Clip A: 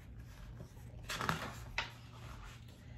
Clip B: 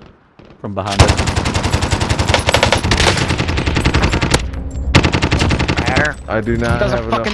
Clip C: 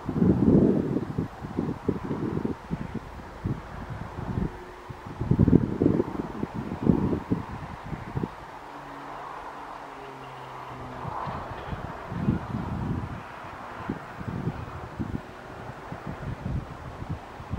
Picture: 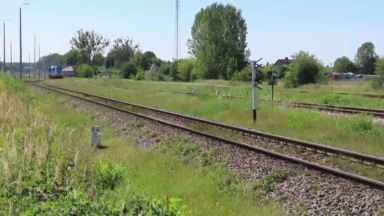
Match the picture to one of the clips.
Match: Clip C